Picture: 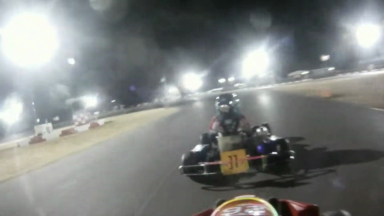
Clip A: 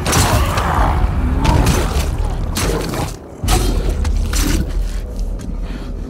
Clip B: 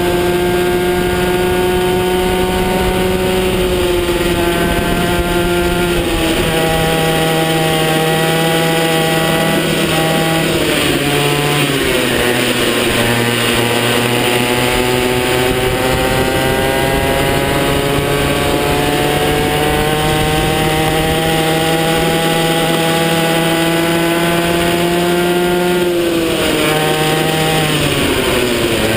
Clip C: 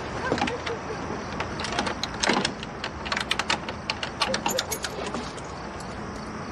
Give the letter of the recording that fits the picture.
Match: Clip B